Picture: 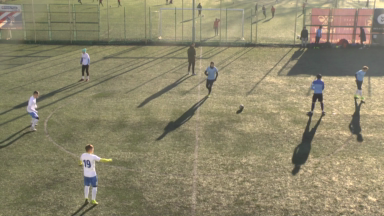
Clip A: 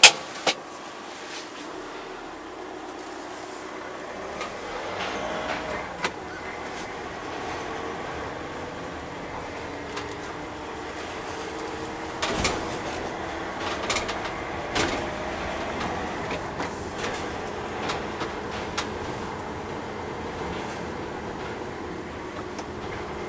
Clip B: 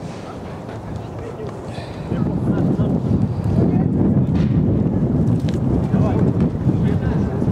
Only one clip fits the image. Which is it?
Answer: B